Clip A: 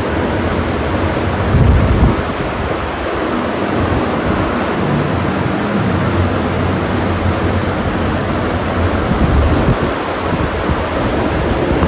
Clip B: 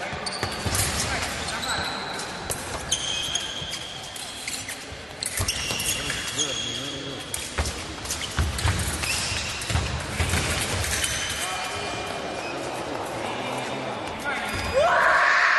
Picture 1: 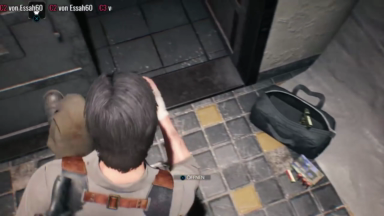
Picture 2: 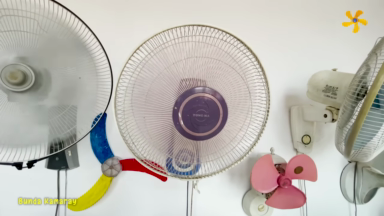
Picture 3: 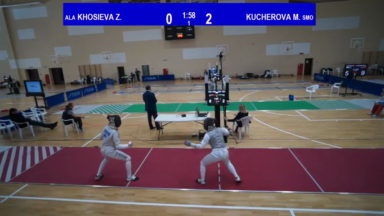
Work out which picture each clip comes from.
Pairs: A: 2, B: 3